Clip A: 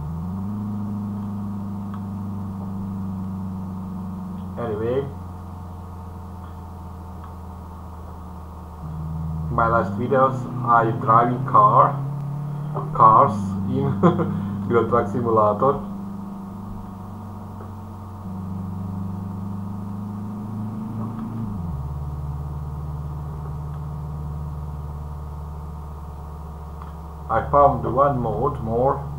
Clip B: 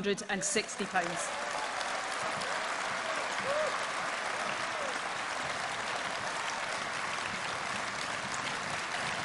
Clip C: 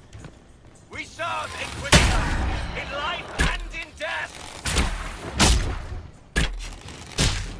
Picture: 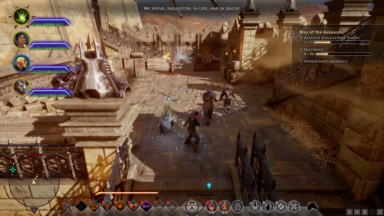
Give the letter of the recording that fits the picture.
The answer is C